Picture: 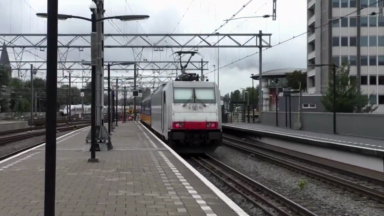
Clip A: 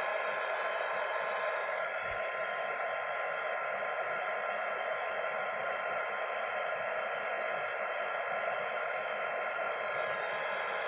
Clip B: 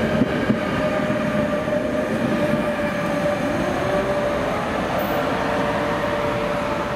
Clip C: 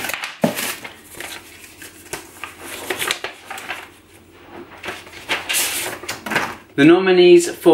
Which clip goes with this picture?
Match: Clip B